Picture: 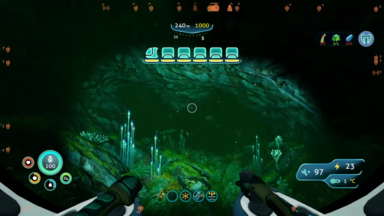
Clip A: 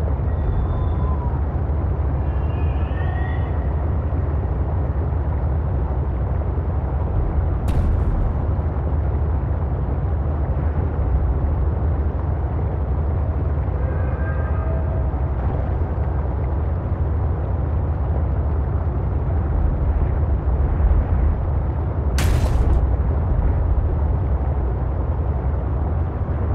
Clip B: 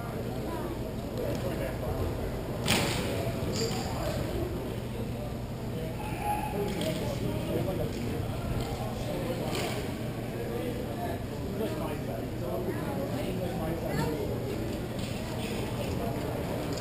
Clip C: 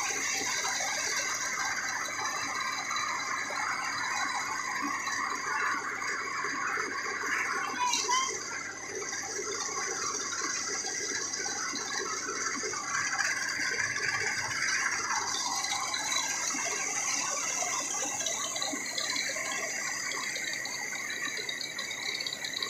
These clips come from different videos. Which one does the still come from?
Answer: A